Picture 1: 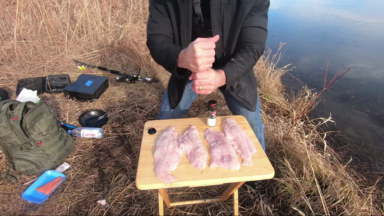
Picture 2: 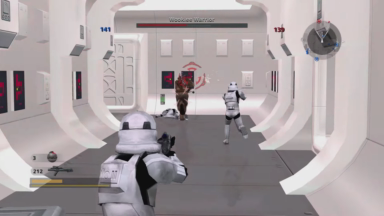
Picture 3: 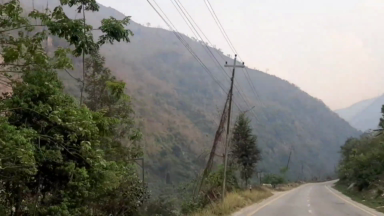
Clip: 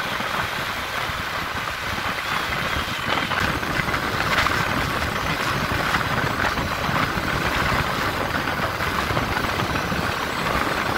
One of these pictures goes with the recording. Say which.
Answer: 3